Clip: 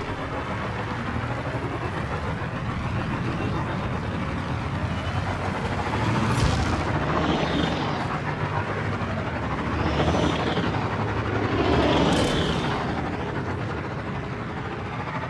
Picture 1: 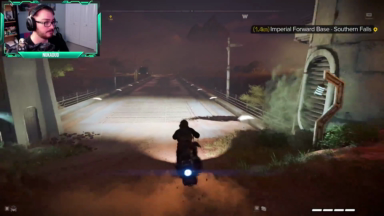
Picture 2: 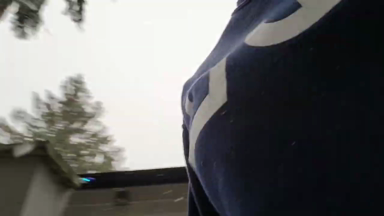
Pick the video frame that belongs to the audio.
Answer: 1